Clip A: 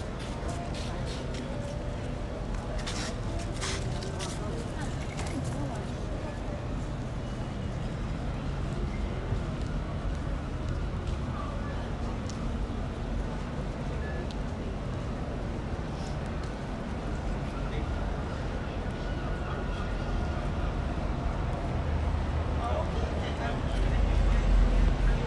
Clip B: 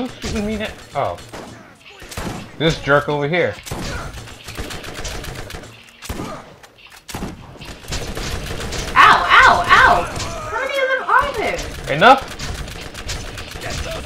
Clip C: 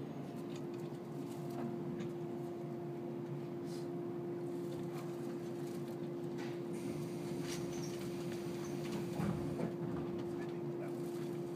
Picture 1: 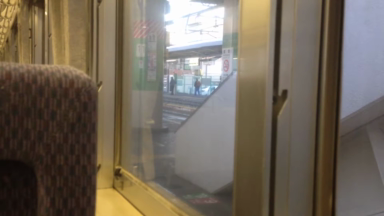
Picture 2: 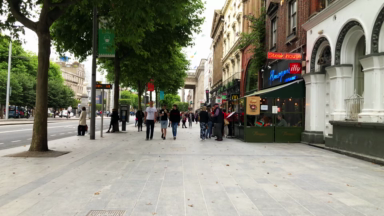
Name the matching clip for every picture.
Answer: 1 C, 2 A